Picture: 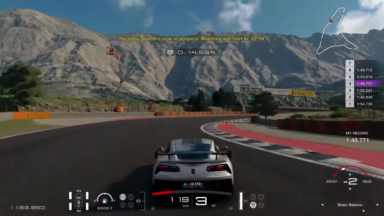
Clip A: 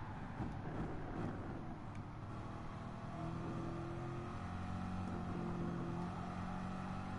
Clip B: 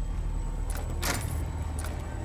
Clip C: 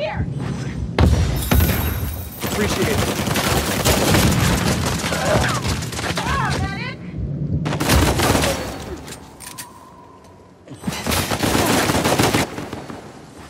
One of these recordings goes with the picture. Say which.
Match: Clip A